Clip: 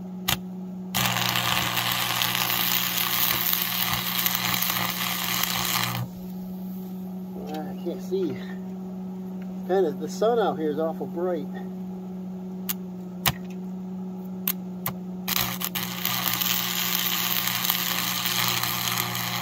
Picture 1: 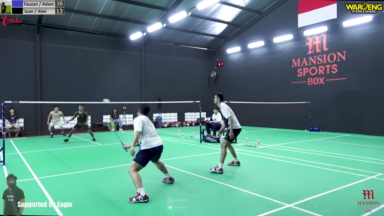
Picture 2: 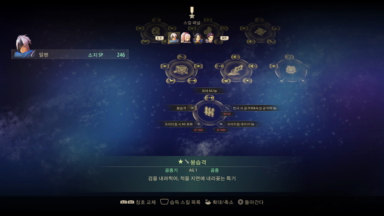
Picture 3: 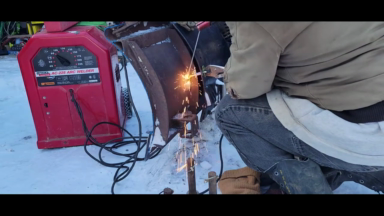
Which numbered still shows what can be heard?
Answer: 3